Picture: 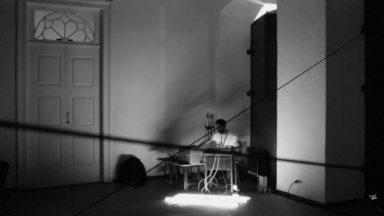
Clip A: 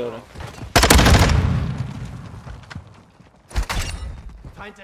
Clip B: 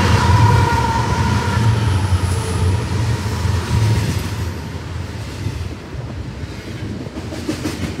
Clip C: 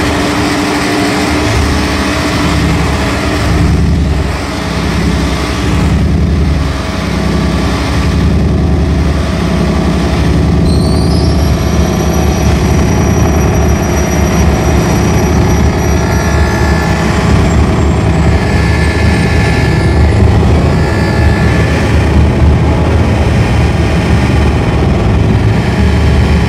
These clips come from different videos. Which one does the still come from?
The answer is C